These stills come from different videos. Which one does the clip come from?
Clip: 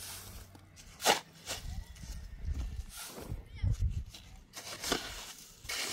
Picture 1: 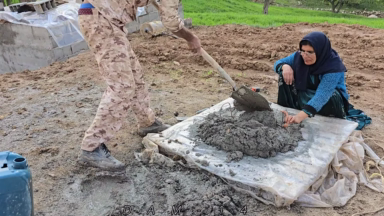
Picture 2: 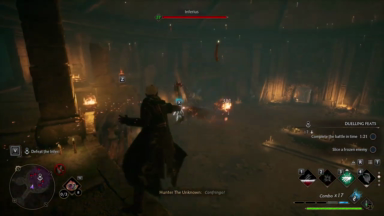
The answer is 1